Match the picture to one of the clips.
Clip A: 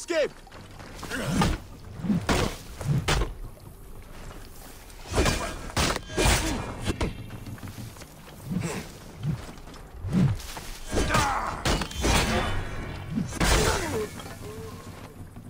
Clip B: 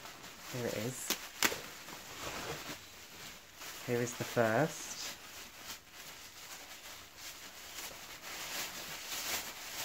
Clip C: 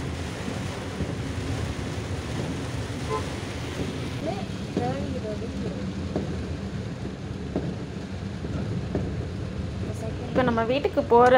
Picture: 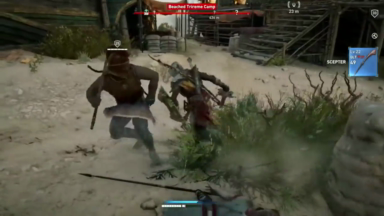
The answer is A